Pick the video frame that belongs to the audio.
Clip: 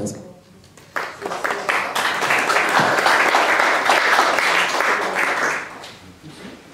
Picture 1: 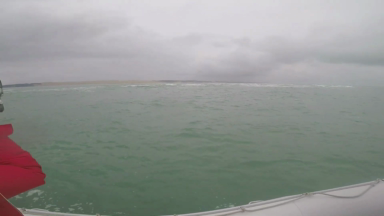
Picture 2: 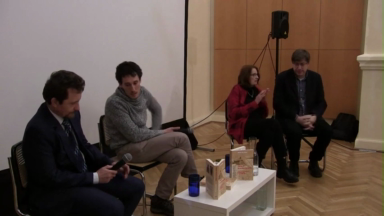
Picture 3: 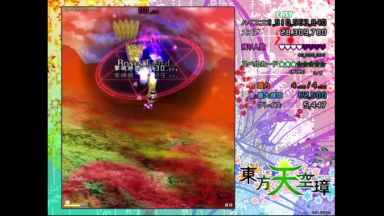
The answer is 2